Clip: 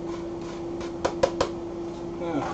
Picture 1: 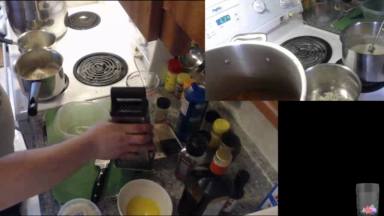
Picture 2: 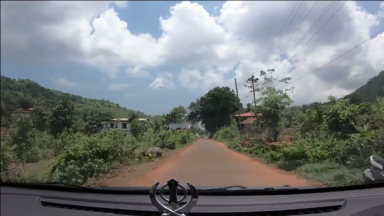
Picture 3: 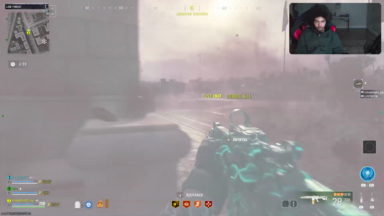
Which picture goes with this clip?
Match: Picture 1